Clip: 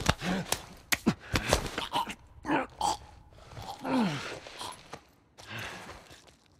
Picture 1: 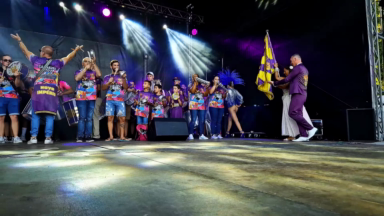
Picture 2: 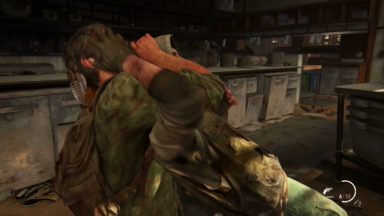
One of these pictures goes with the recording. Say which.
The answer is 2